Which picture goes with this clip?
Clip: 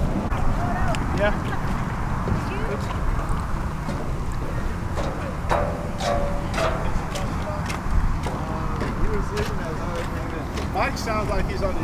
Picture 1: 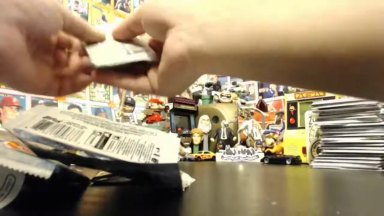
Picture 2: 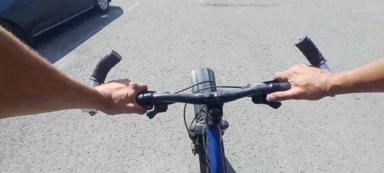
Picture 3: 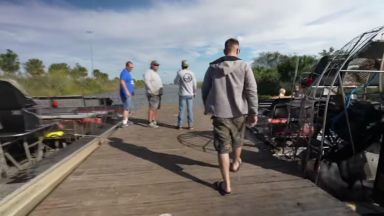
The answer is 3